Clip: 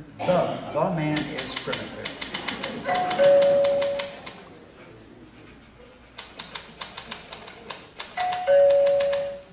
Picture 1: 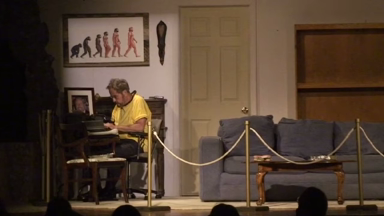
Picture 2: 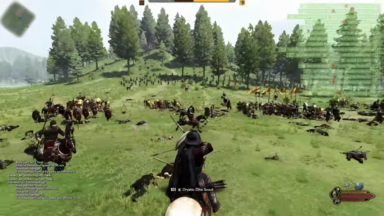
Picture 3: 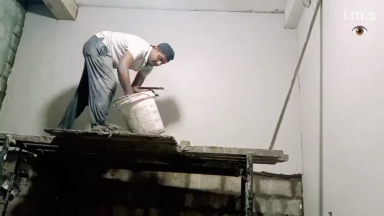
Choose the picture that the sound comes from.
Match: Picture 1